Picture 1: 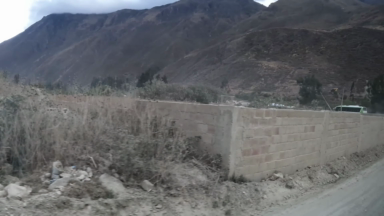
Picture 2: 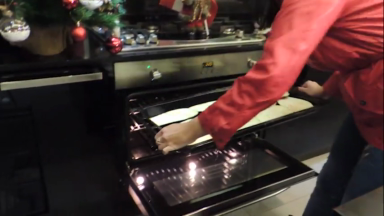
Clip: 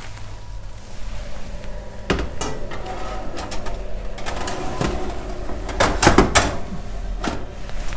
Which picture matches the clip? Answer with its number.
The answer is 2